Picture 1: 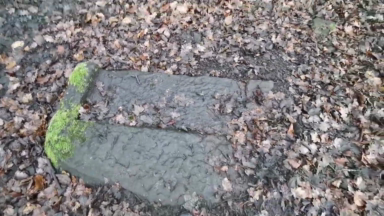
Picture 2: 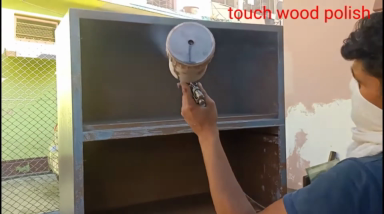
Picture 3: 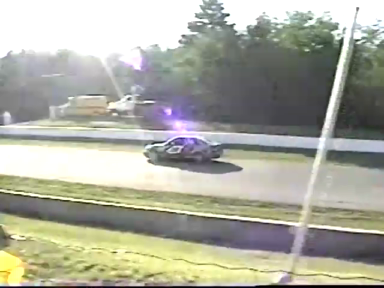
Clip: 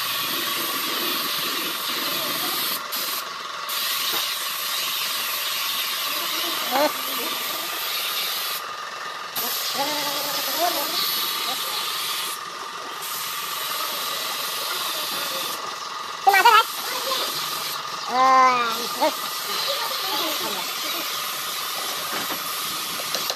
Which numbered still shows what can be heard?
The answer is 2